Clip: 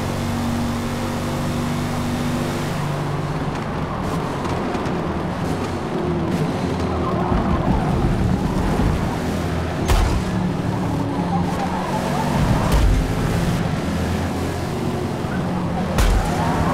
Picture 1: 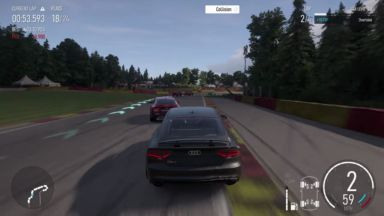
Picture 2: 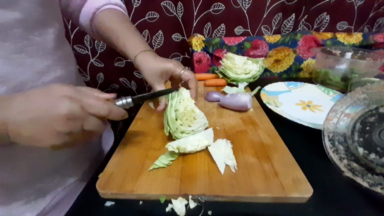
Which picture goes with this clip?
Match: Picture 1